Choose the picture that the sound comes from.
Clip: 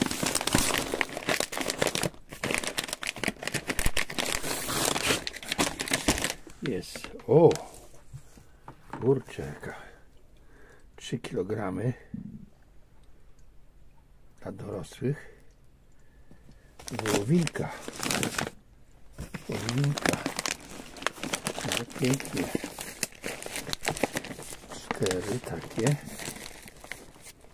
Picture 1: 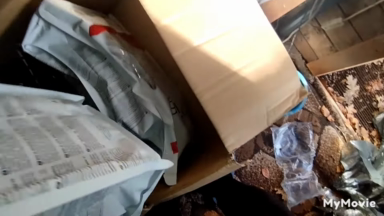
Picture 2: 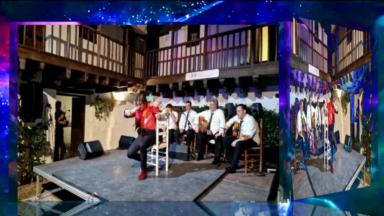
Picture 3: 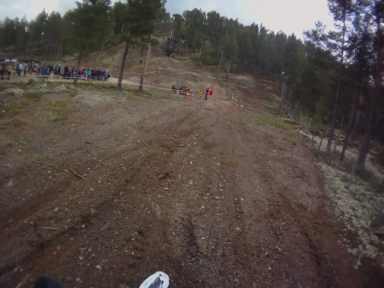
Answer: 1